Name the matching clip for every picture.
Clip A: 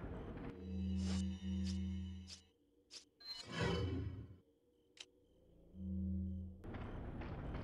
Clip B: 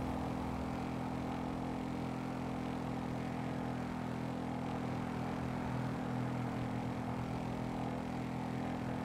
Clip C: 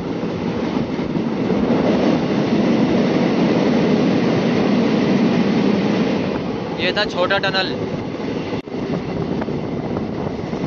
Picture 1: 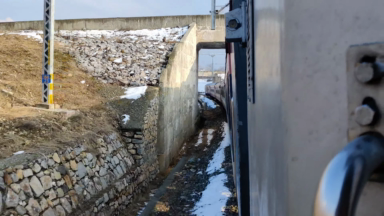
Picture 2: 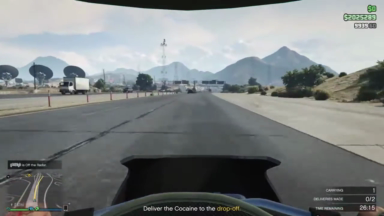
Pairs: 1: C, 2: B